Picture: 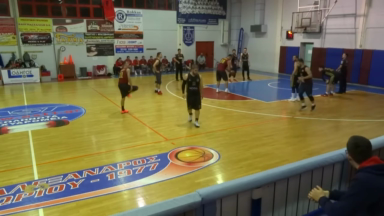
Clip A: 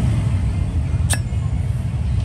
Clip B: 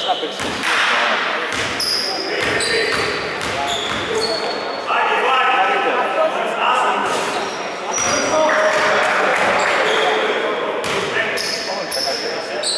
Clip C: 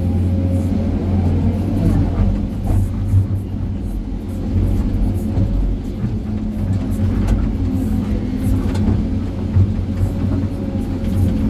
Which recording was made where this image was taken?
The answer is B